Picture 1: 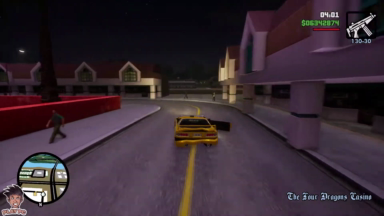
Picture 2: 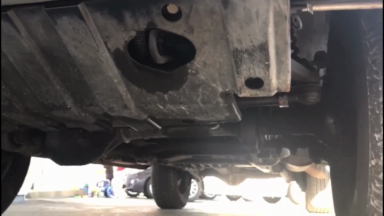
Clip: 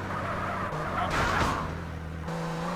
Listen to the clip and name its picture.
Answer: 1